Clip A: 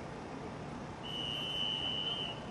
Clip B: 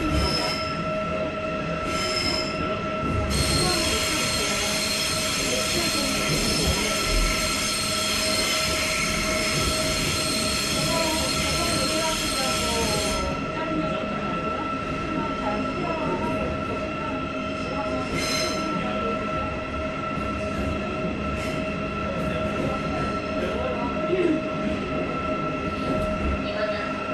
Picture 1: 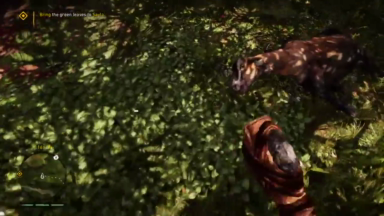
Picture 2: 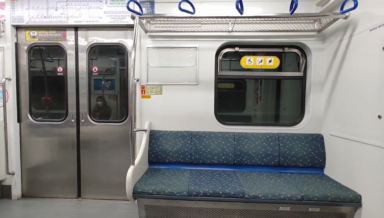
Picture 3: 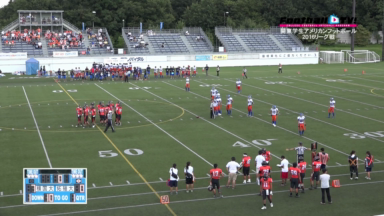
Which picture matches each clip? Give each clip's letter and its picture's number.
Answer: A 3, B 2